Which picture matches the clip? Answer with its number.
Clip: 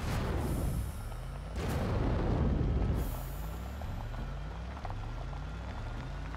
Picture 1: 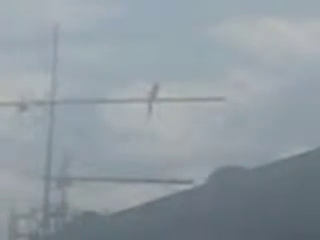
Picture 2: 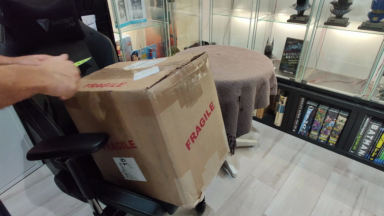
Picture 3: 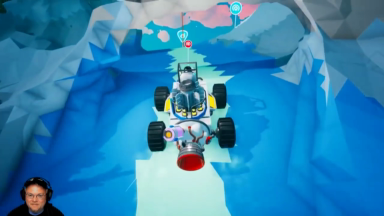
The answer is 3